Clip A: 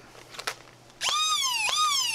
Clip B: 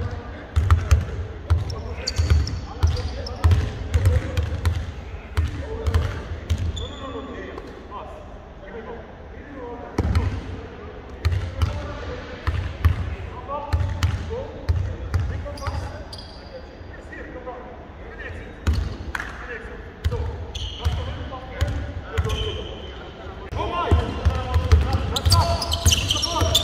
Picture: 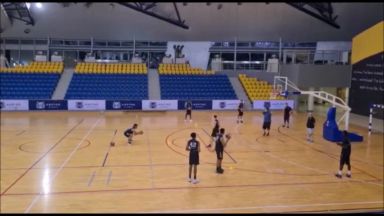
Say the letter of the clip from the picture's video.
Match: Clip B